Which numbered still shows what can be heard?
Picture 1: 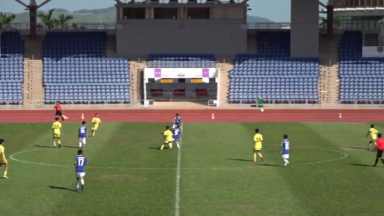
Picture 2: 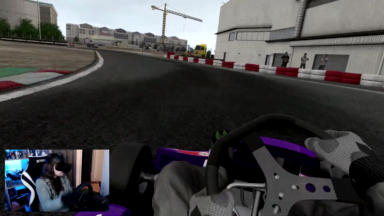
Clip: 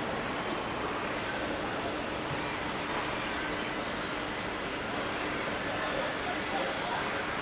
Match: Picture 1